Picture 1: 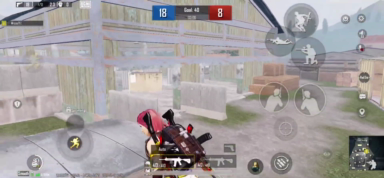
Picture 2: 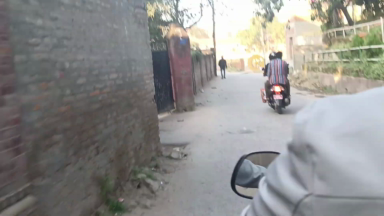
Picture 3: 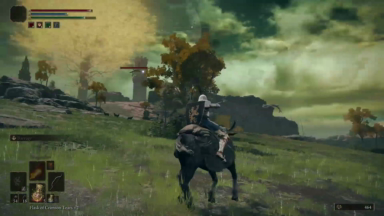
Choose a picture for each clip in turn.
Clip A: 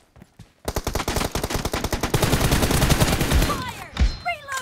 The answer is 1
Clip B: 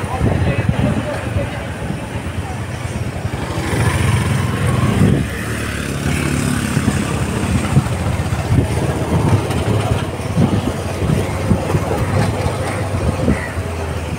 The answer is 2